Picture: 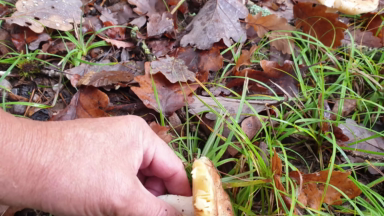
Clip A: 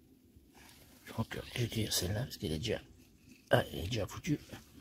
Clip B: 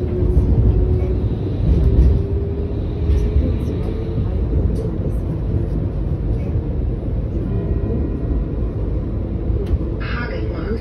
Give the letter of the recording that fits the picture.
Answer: A